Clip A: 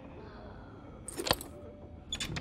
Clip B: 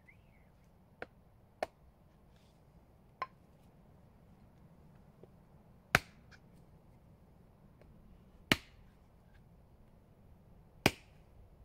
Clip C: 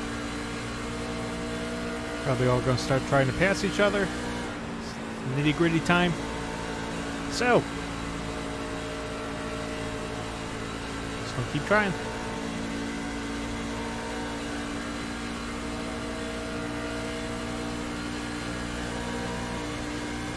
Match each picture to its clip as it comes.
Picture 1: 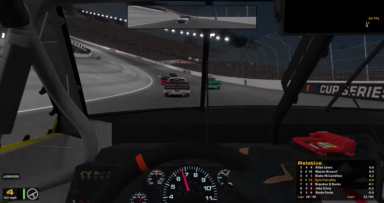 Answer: C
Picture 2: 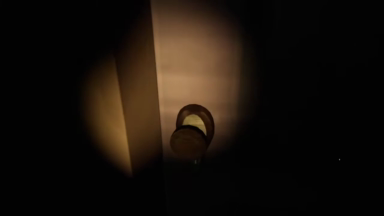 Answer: A